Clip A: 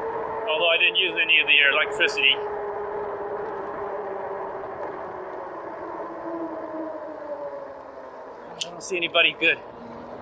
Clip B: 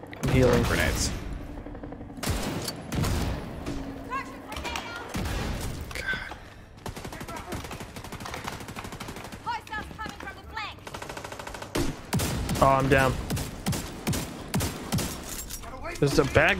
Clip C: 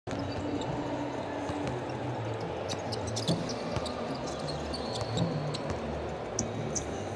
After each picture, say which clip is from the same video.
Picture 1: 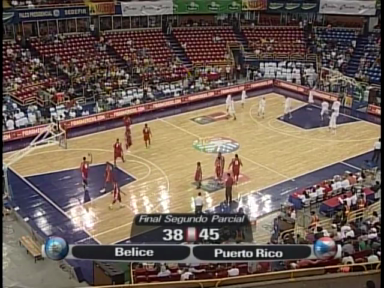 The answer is C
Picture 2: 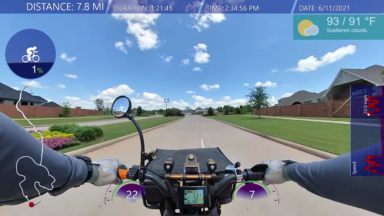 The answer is A